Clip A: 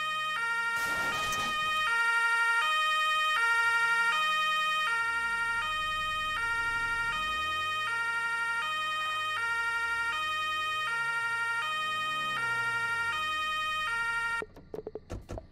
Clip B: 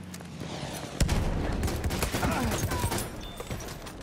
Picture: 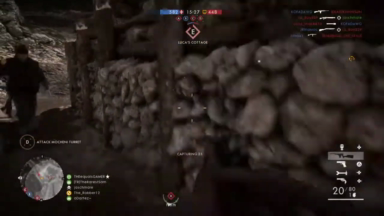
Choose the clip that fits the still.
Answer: B